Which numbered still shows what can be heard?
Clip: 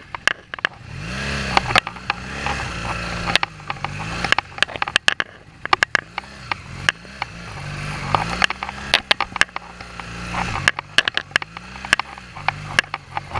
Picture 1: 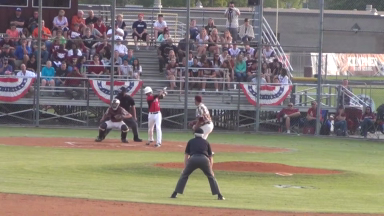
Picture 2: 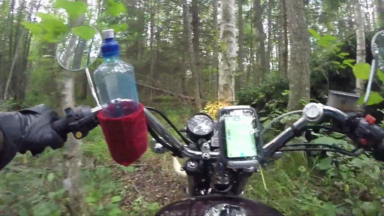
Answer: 2